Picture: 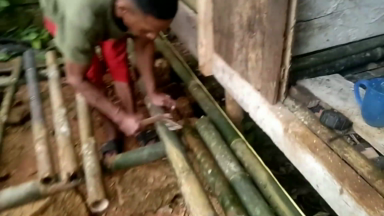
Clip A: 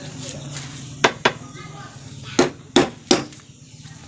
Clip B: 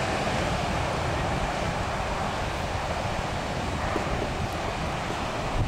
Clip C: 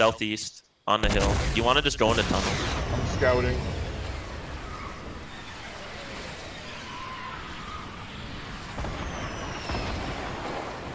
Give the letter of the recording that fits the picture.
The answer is A